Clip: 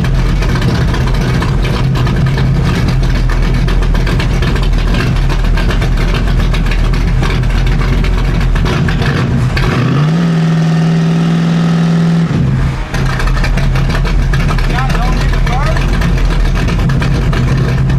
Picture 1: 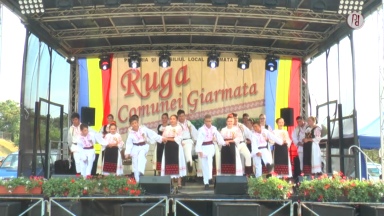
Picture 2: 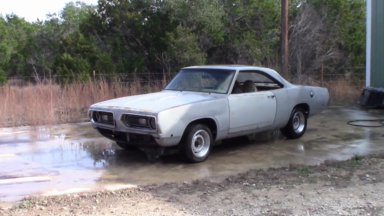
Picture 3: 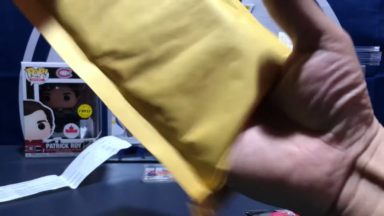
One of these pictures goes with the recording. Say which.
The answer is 2